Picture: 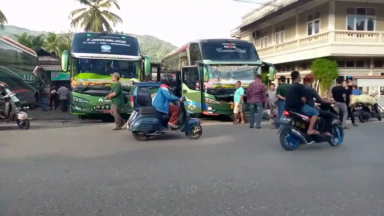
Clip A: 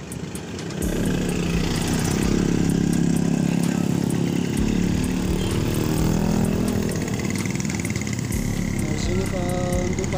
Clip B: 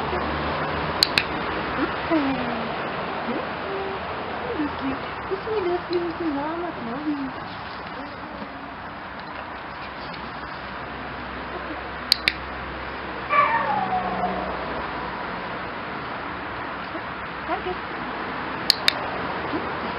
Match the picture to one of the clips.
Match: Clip A